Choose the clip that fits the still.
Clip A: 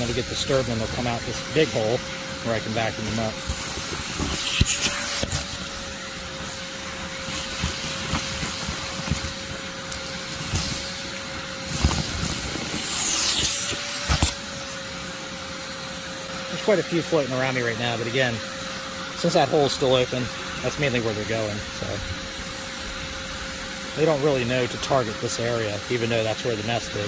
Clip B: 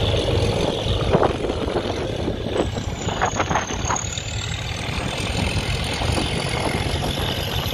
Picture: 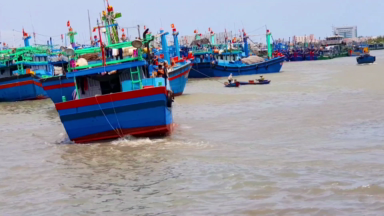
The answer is B